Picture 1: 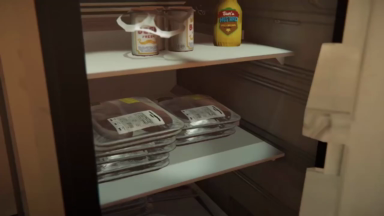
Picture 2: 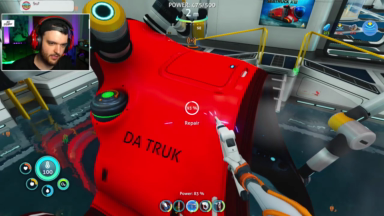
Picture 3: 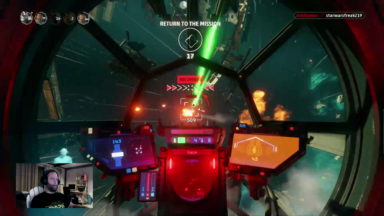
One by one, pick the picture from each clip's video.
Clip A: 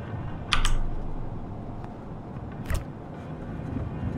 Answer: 1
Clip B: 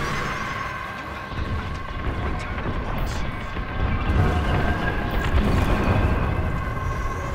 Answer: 3